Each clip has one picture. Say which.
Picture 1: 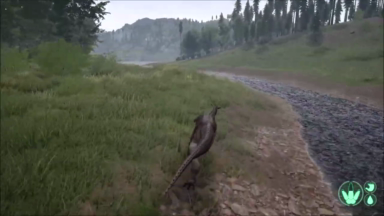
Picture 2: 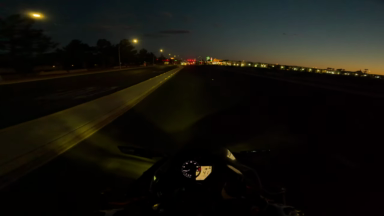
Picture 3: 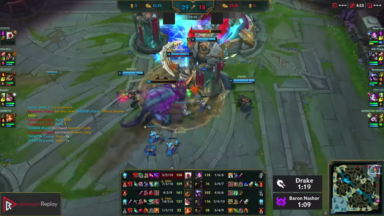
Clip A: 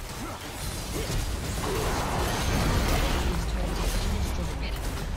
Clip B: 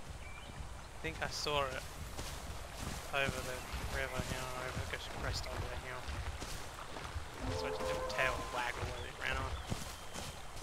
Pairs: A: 3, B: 1